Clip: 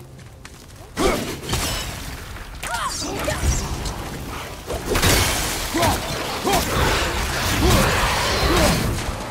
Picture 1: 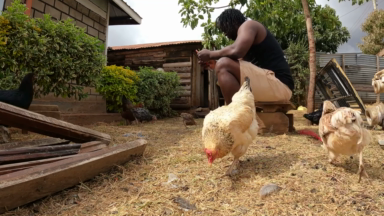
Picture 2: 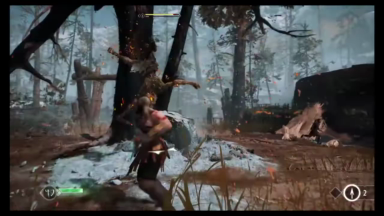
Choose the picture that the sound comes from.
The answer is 2